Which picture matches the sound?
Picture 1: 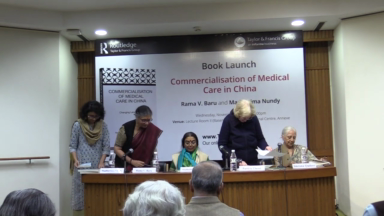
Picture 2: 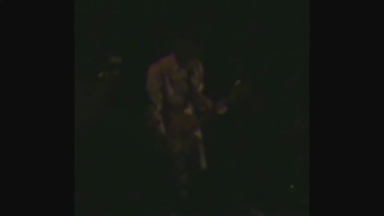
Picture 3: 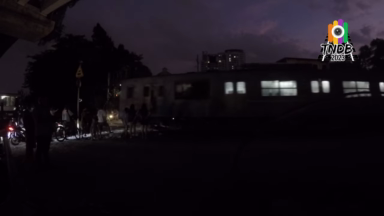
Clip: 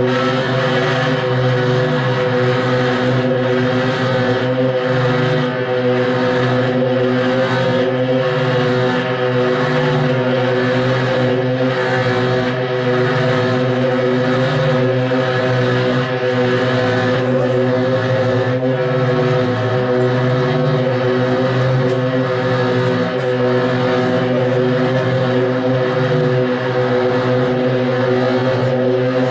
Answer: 2